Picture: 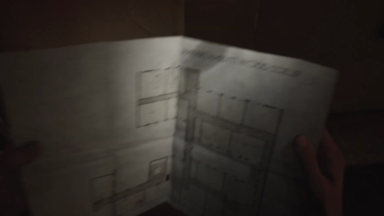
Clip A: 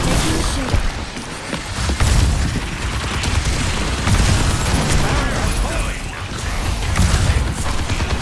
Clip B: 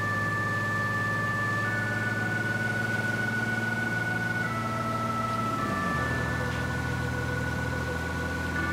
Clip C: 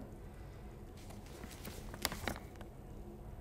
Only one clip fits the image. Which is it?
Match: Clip C